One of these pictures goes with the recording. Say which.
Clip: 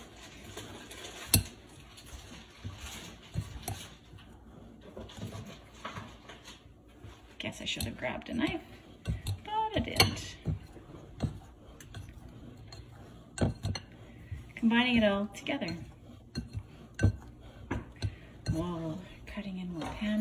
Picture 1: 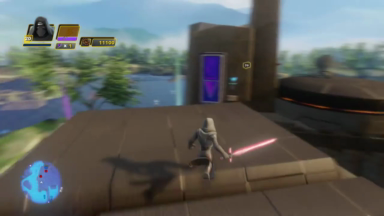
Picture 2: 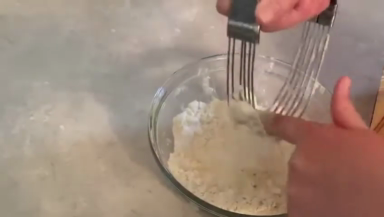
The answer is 2